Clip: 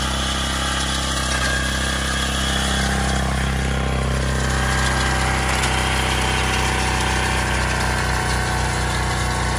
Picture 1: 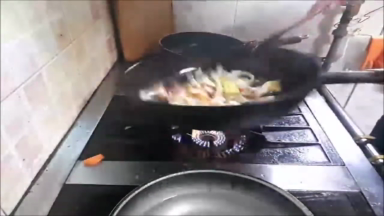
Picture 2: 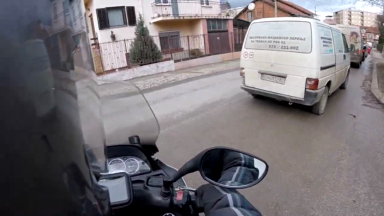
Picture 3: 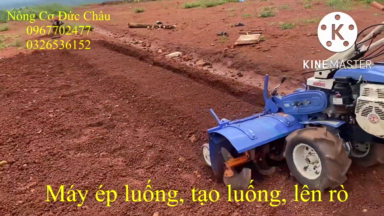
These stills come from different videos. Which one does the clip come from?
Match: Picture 3